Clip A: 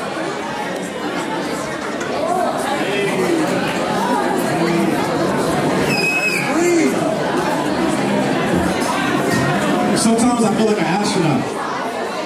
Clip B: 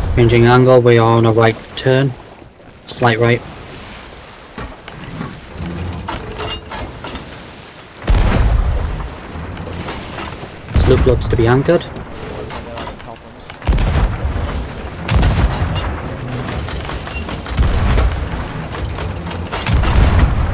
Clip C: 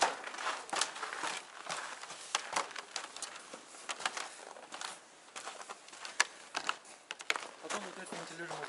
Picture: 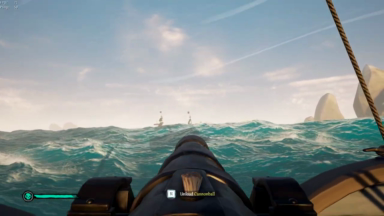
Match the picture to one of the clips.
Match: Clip B